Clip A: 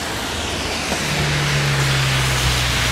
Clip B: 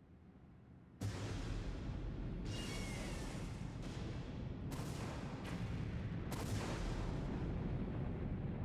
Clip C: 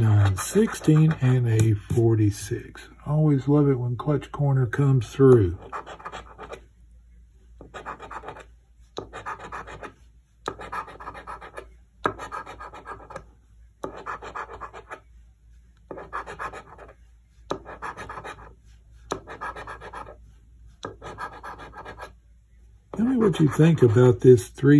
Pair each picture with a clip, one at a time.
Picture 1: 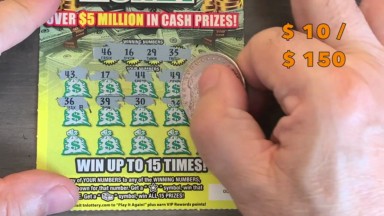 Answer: C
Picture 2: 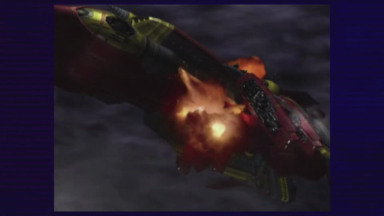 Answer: B